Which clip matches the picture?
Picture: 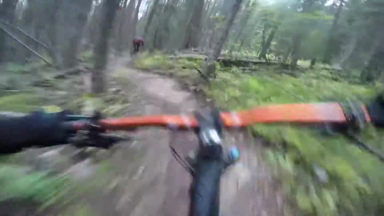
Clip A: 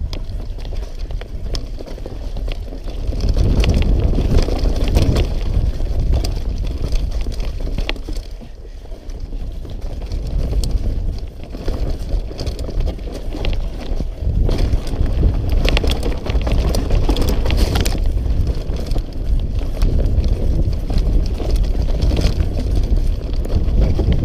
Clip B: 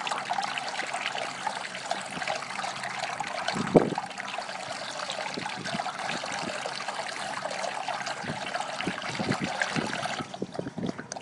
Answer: A